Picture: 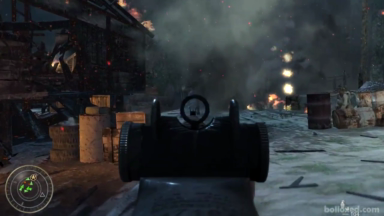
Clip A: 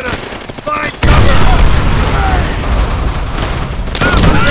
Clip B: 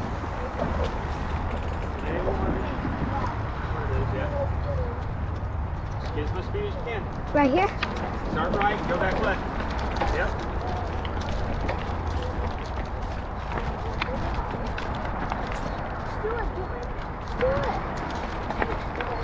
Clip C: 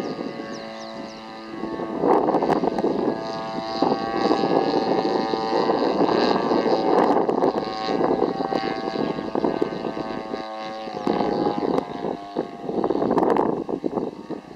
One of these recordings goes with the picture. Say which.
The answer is A